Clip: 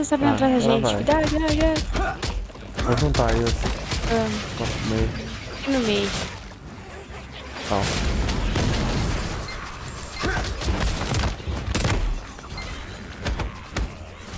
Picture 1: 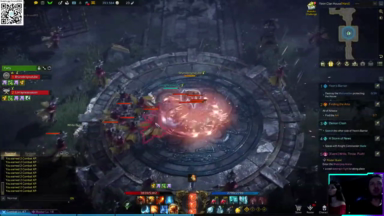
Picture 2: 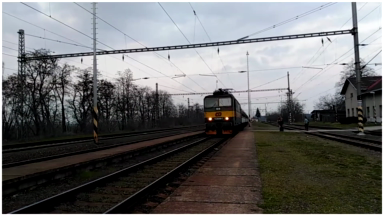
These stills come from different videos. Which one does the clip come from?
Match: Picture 1